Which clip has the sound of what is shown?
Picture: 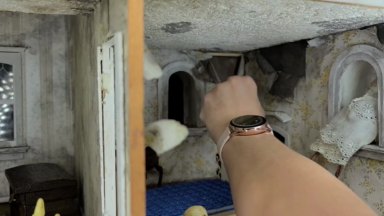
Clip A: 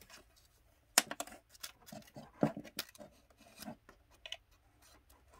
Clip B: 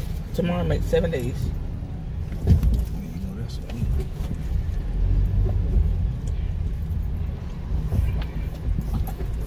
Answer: A